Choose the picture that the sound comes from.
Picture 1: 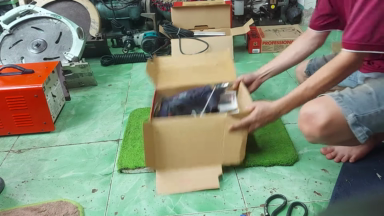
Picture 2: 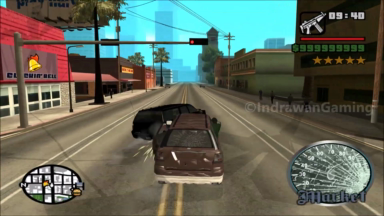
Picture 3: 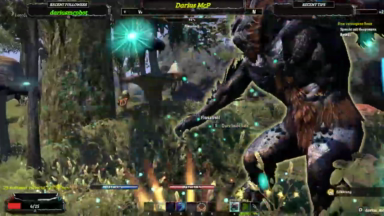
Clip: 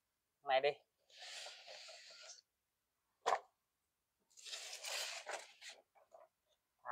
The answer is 1